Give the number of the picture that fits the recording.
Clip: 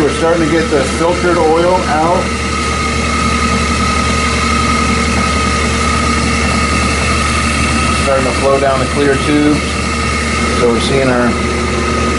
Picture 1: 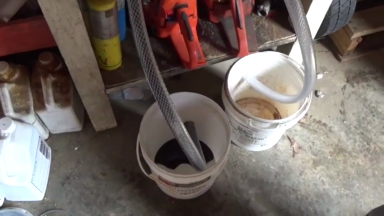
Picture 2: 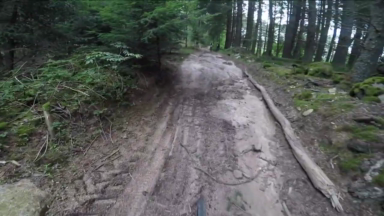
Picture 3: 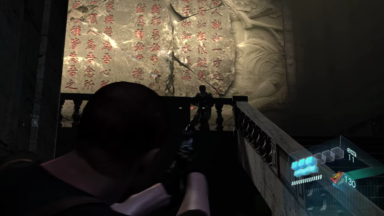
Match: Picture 1